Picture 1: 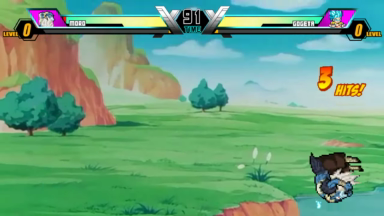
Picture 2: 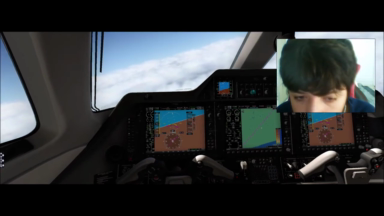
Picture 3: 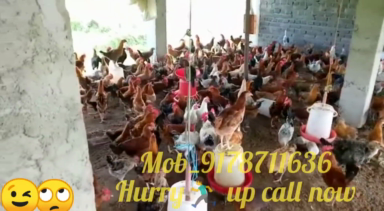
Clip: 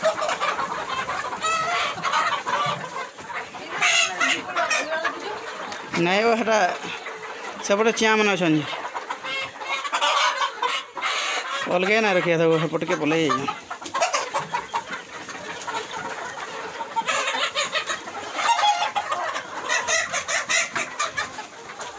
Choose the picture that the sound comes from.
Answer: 3